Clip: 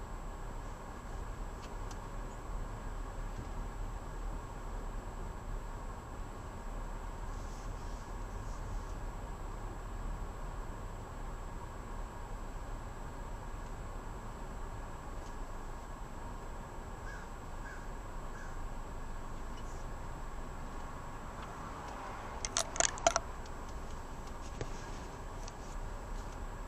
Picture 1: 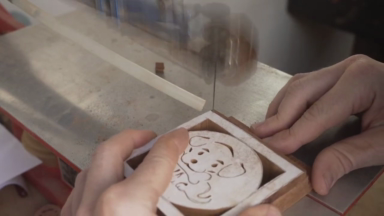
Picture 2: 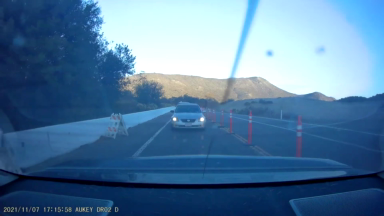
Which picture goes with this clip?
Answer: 2